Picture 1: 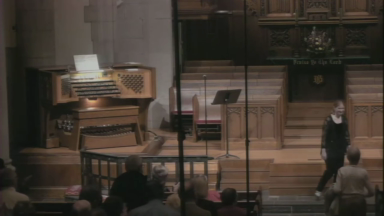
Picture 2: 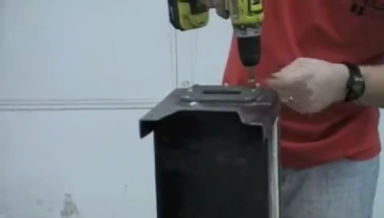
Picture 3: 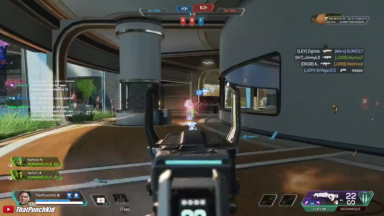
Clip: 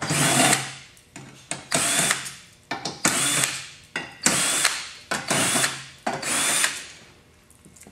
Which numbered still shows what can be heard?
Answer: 2